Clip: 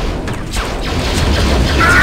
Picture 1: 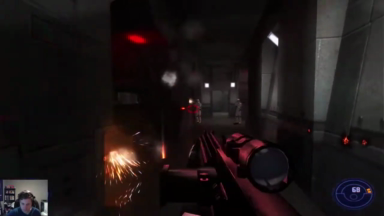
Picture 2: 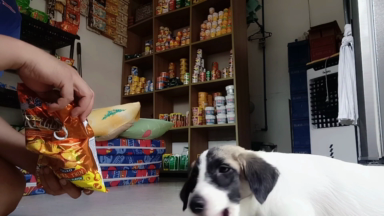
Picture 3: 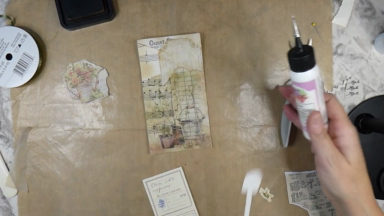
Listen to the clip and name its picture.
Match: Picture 1